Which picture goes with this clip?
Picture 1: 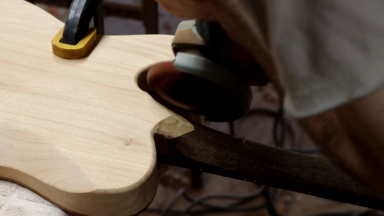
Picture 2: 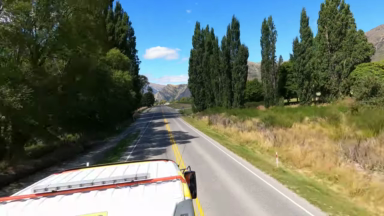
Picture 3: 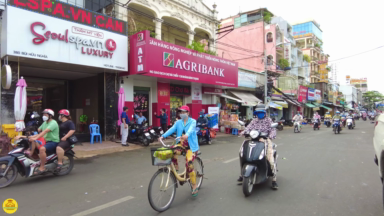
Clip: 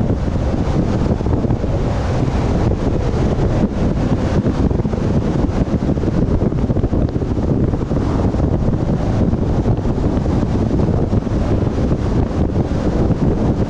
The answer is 2